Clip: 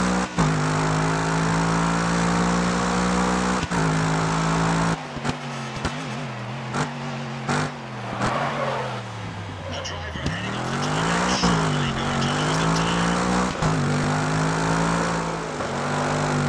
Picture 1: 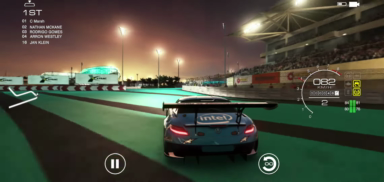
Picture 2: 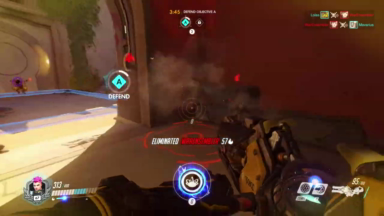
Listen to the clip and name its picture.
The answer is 1